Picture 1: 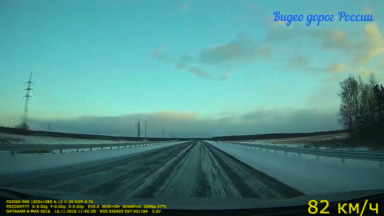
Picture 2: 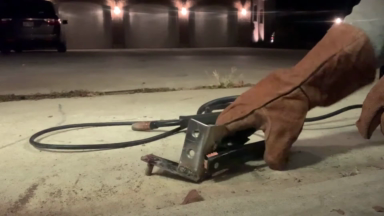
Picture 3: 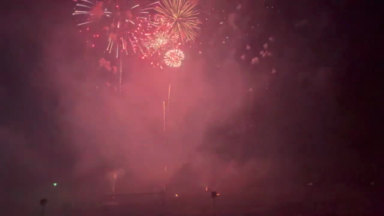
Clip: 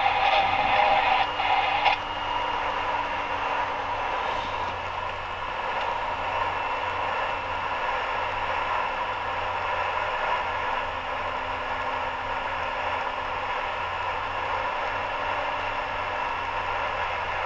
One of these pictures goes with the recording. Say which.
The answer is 1